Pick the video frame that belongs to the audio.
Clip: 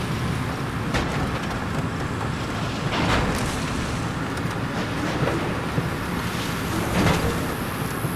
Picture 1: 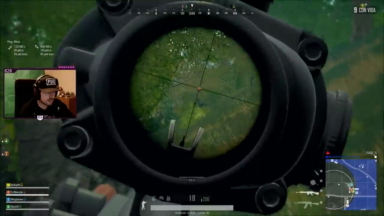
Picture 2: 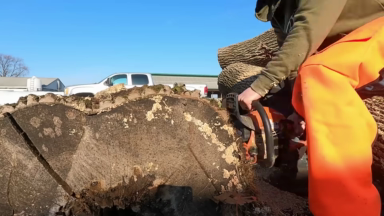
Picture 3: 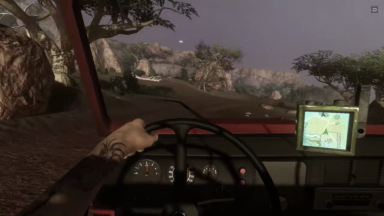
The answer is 3